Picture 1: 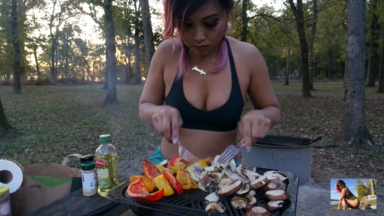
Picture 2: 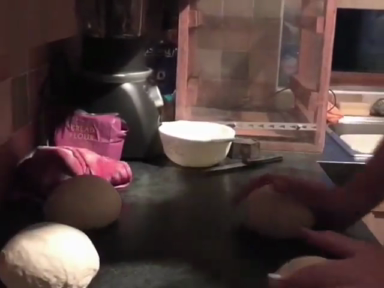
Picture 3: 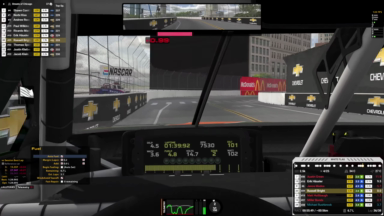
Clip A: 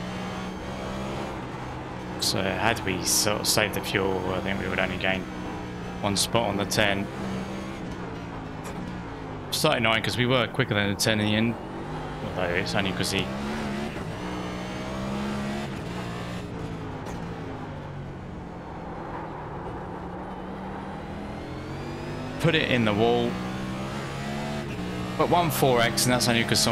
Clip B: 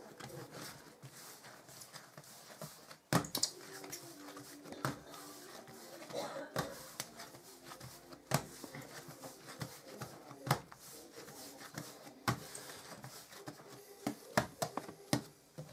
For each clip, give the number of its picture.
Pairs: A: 3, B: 2